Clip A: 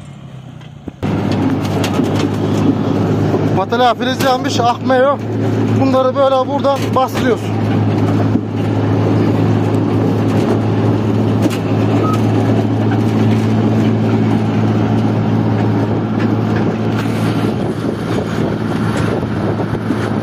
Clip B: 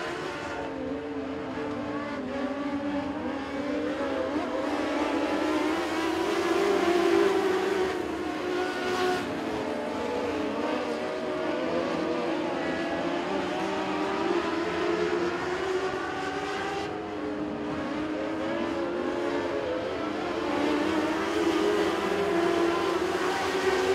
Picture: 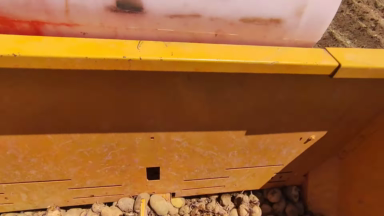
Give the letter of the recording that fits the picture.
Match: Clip A